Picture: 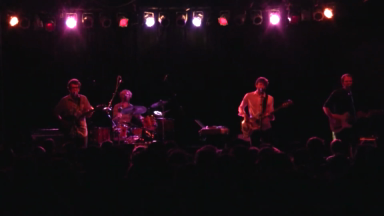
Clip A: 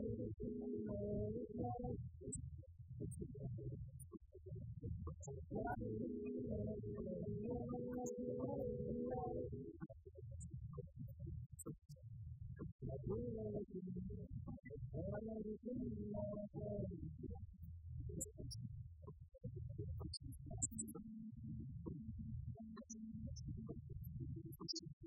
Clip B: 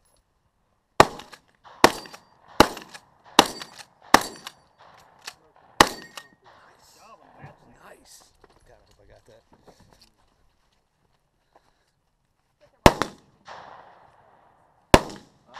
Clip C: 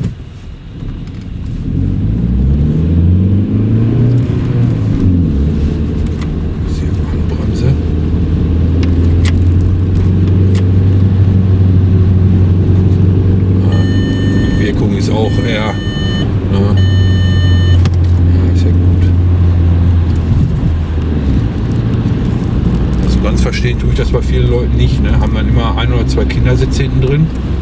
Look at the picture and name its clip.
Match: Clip A